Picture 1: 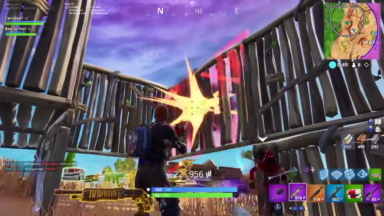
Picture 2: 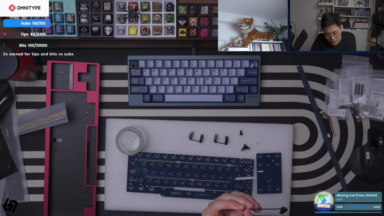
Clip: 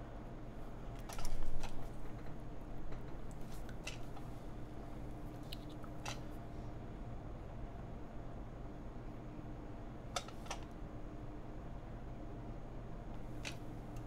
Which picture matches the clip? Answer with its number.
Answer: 2